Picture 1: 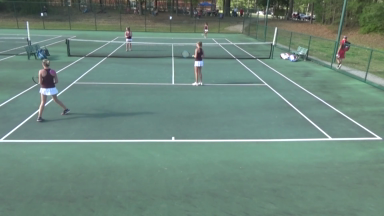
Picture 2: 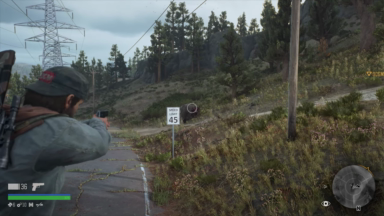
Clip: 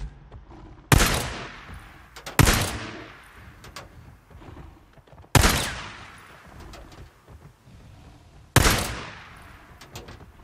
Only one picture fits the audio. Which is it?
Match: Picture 2